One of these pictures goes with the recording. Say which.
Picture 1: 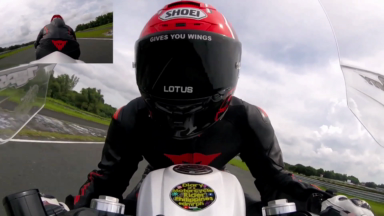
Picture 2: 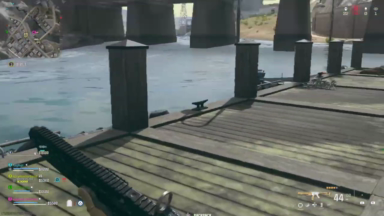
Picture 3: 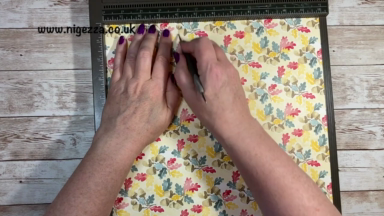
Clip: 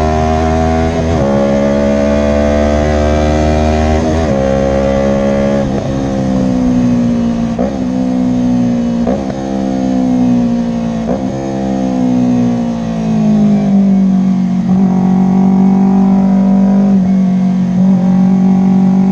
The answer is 1